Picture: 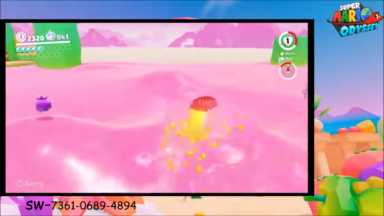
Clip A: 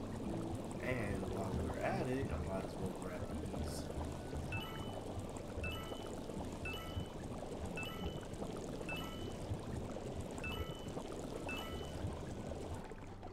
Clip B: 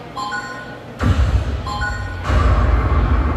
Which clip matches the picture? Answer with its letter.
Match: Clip A